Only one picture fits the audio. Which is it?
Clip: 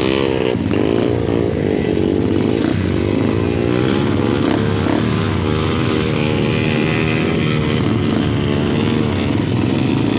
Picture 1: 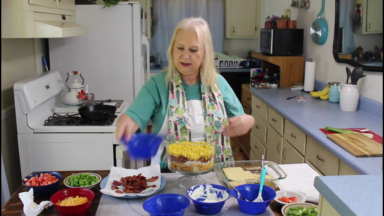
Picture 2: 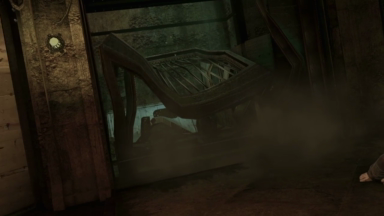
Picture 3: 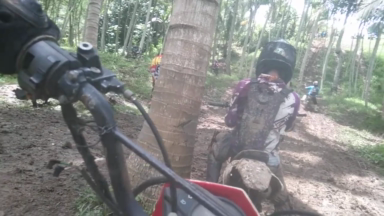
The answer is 3